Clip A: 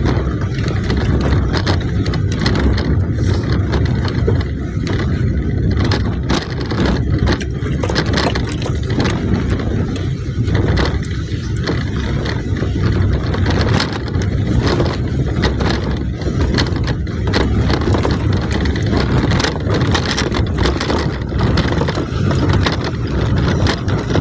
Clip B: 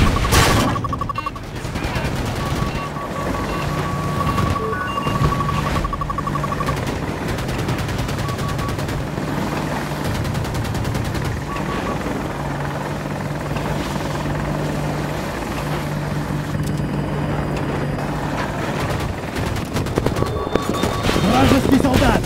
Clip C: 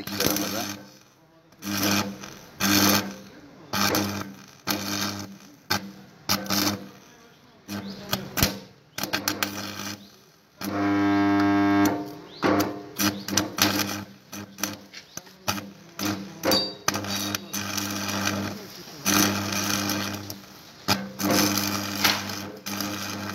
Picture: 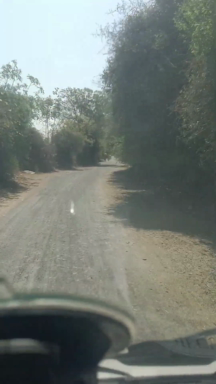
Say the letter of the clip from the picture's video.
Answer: A